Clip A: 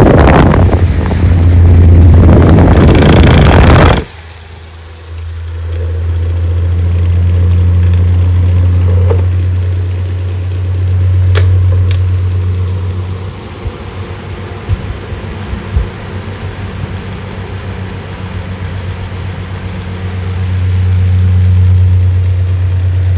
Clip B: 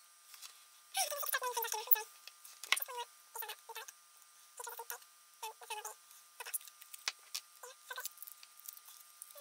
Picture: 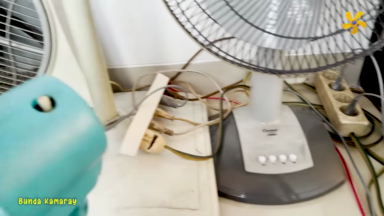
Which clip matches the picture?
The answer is A